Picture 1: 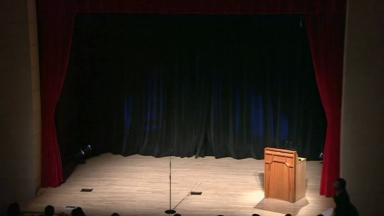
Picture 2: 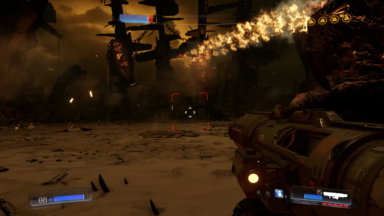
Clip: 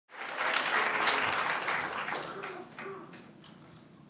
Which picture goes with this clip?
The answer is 1